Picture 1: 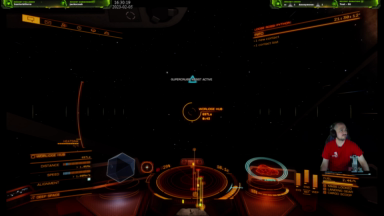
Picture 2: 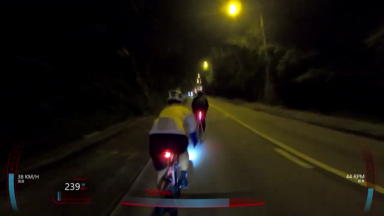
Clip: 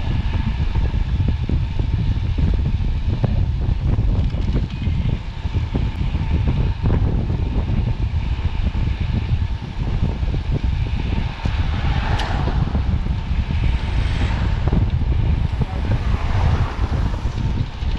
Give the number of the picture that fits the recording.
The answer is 2